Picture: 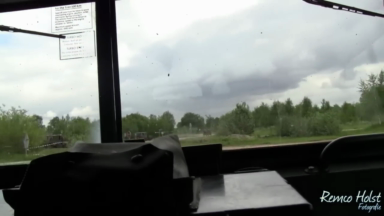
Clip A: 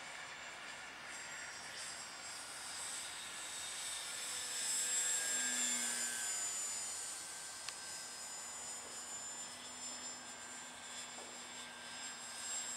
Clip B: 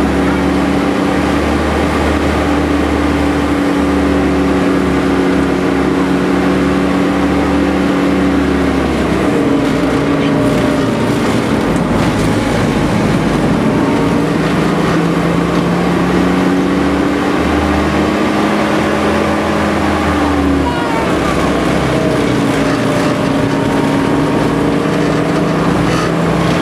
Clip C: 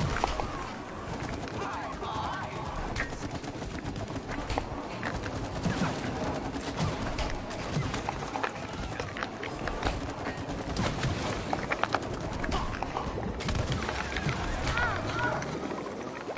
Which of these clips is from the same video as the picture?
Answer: B